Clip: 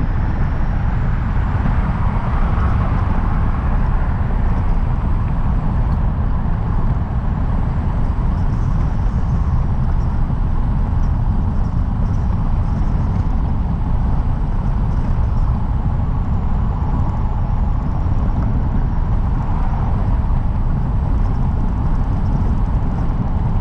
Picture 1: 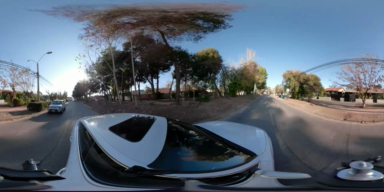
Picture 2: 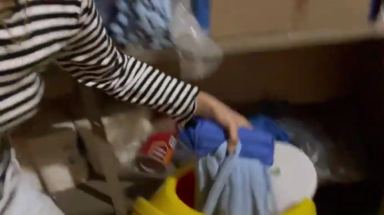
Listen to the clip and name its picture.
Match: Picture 1